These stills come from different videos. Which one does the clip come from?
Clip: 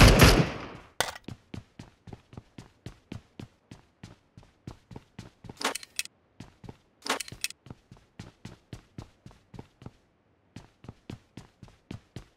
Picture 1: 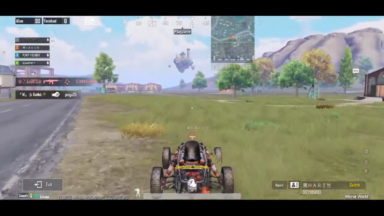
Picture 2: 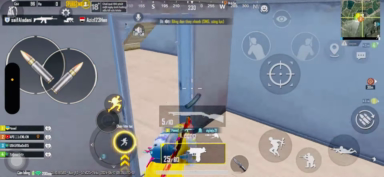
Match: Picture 2